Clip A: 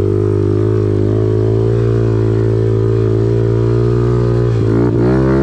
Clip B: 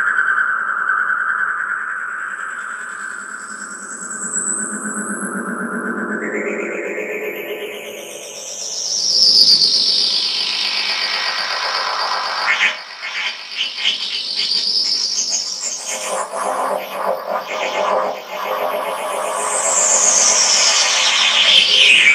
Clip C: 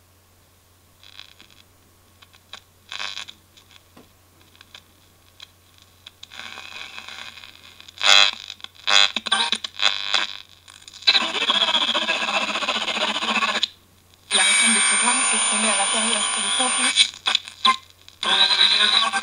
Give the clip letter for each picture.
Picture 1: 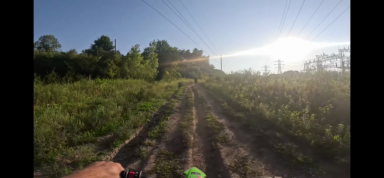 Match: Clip A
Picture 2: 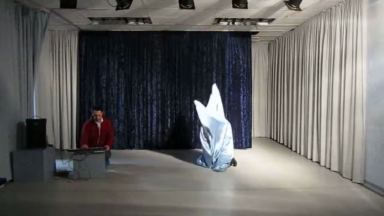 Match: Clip B